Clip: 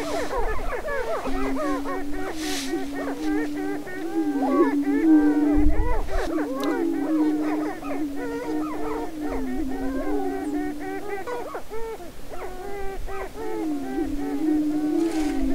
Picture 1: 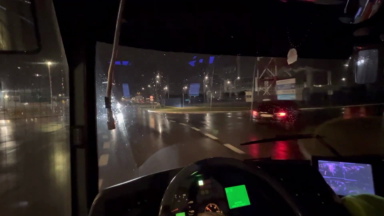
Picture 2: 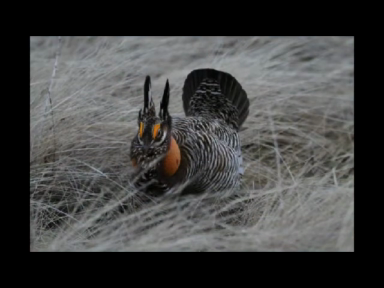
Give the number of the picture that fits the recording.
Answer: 2